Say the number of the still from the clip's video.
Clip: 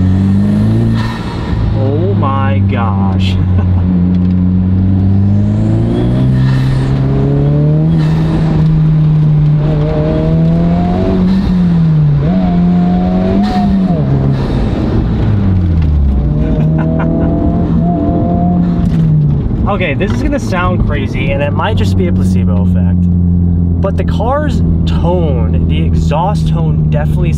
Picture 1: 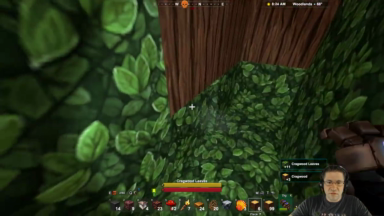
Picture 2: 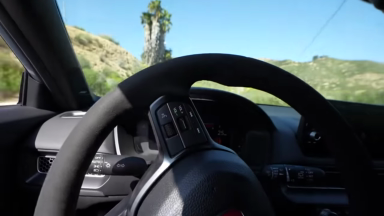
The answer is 2